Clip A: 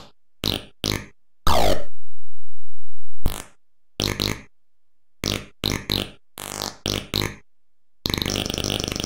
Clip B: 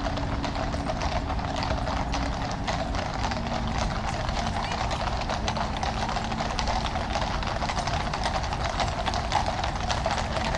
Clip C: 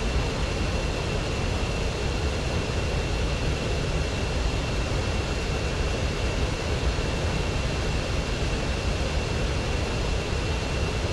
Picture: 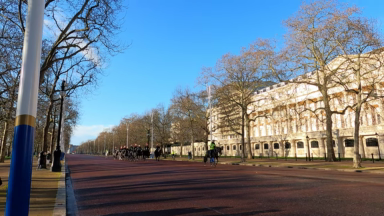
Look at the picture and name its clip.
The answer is B